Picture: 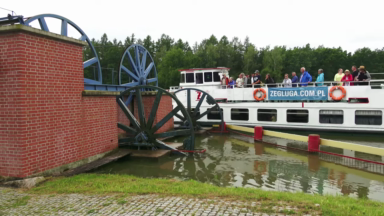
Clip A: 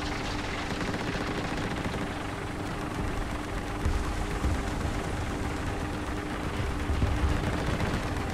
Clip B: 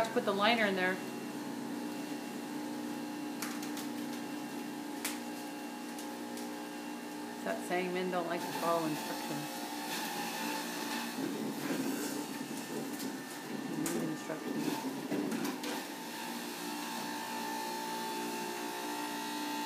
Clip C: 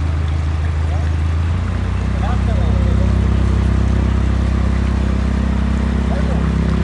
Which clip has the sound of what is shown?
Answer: C